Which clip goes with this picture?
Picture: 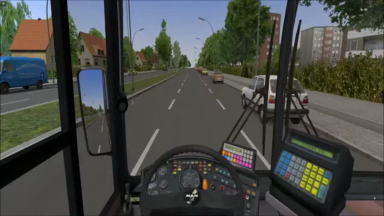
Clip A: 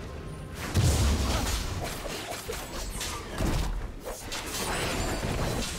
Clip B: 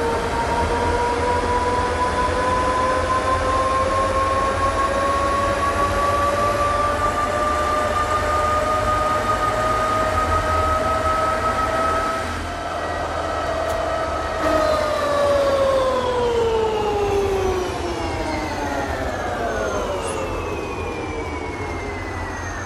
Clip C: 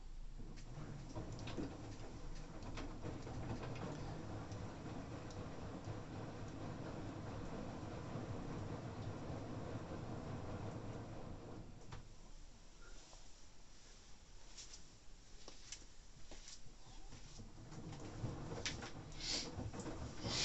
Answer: B